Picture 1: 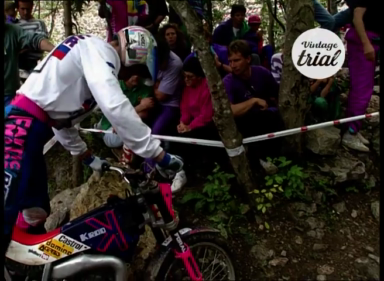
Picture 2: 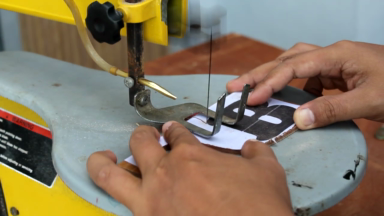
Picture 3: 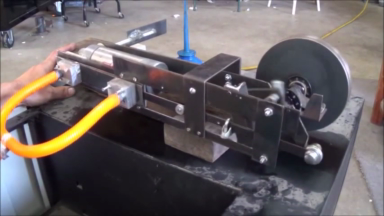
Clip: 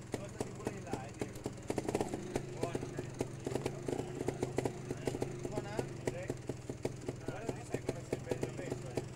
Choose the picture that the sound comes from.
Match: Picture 1